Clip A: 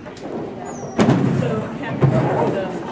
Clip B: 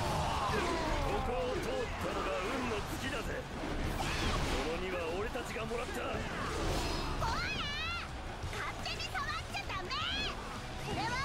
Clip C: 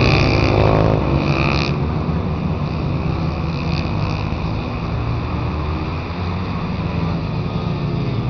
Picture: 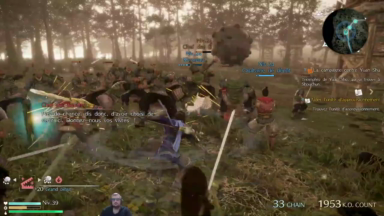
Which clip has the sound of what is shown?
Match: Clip B